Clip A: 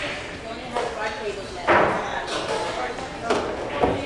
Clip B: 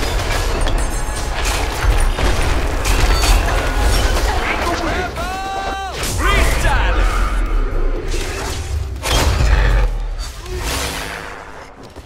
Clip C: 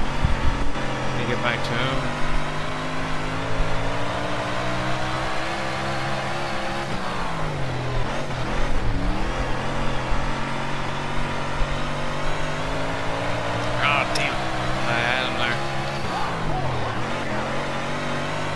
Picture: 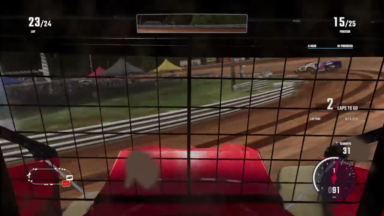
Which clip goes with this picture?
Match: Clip C